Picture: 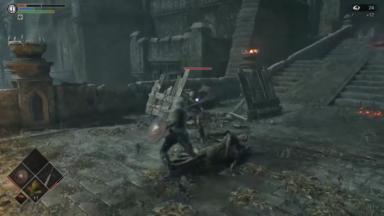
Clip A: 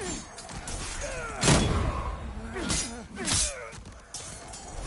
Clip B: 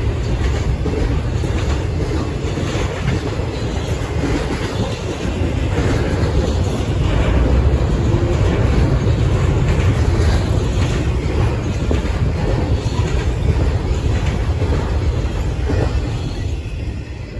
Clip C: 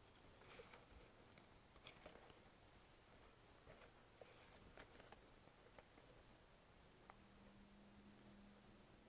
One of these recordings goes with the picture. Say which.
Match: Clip A